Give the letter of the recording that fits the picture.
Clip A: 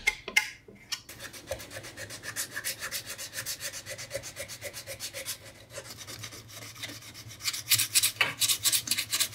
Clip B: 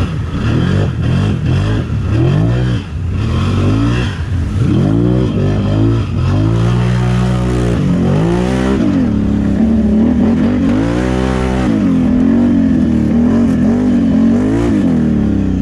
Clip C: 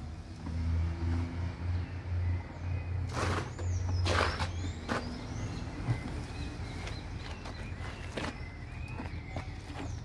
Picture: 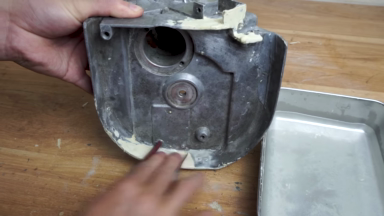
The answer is A